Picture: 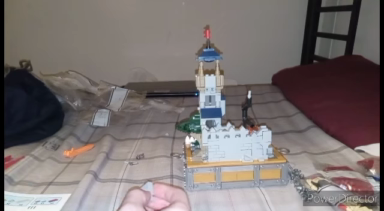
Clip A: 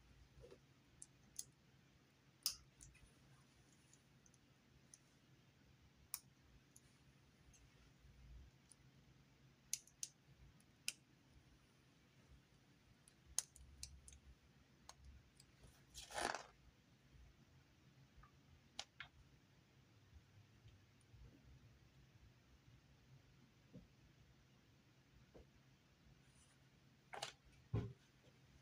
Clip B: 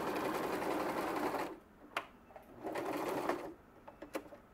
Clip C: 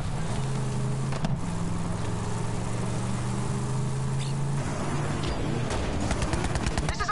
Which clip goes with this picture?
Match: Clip A